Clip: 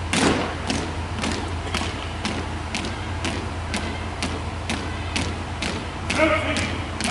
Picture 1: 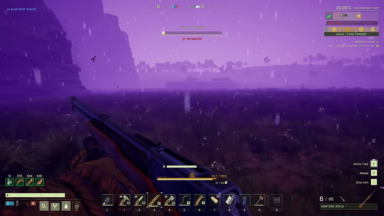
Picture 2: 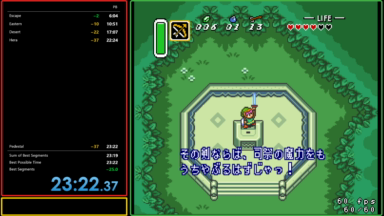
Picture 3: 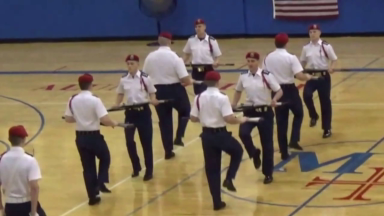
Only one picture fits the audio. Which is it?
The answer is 3